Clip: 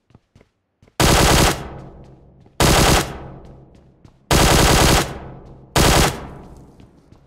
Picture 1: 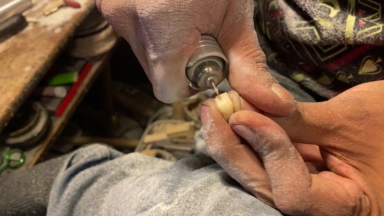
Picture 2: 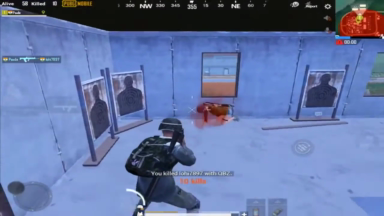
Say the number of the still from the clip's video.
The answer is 2